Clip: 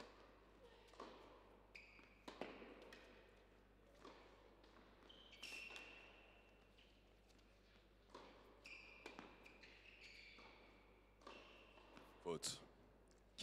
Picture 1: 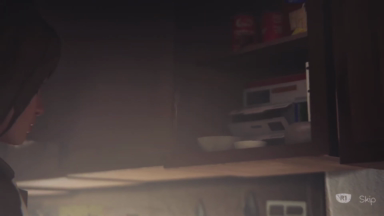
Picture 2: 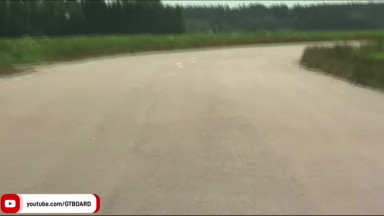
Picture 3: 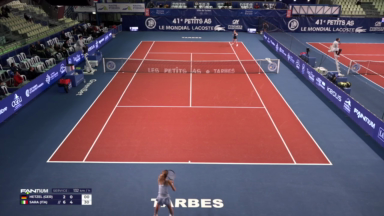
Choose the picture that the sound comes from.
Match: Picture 3